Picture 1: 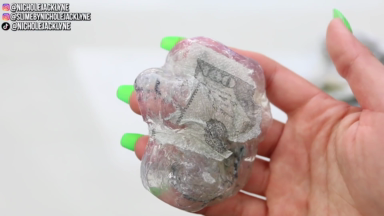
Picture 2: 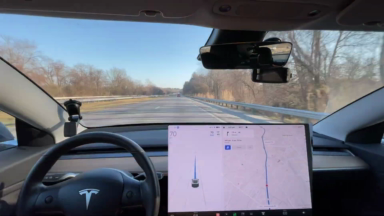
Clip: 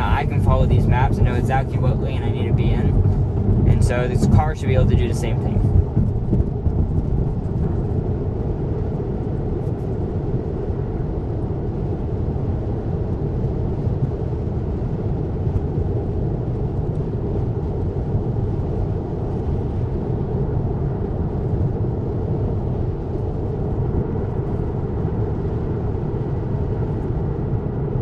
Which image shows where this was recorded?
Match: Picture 2